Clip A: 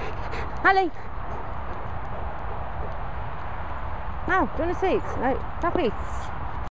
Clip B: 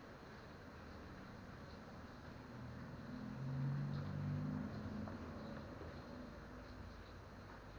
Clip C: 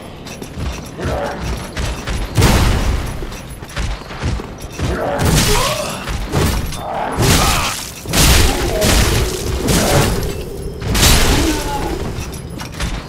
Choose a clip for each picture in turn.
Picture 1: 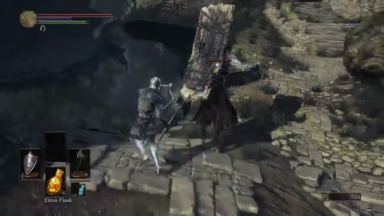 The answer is C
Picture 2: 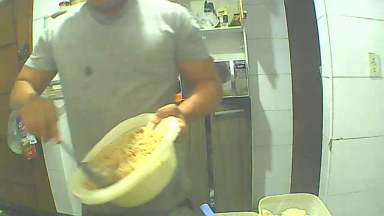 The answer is B